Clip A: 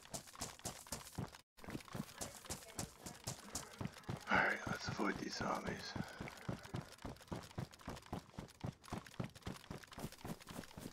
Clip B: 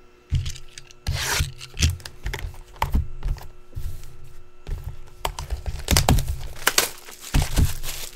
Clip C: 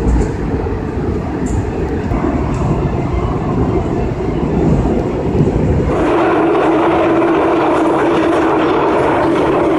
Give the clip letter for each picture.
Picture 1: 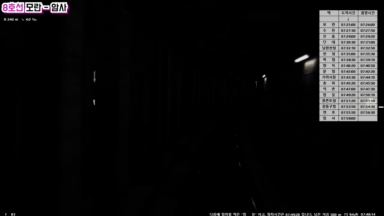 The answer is C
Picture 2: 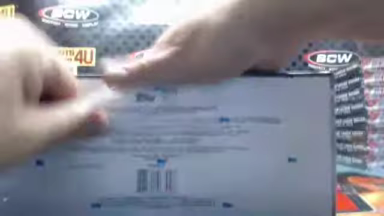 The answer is B